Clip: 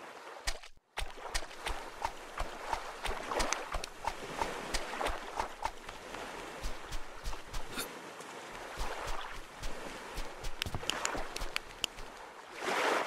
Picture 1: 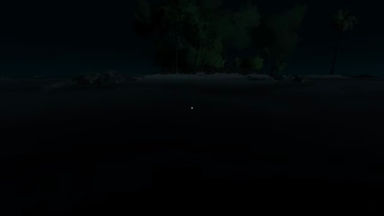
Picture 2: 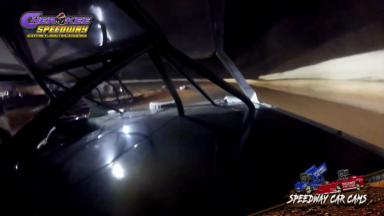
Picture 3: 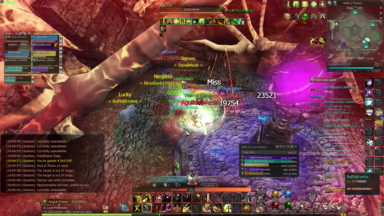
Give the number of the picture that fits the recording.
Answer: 1